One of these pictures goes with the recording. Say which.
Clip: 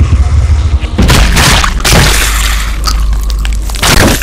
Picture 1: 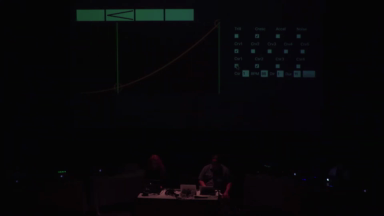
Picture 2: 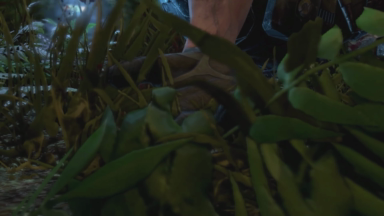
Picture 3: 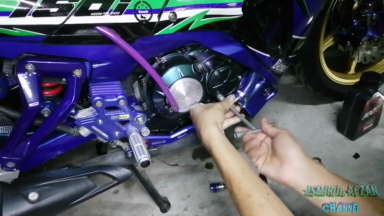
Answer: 2